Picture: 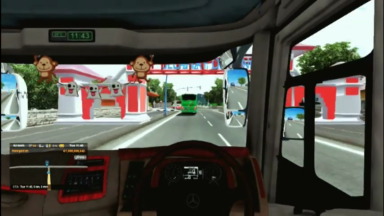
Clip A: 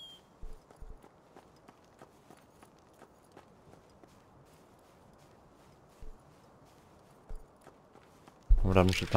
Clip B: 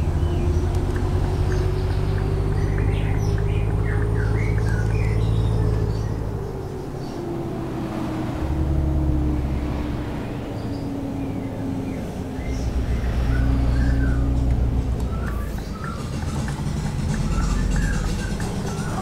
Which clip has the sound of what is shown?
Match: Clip B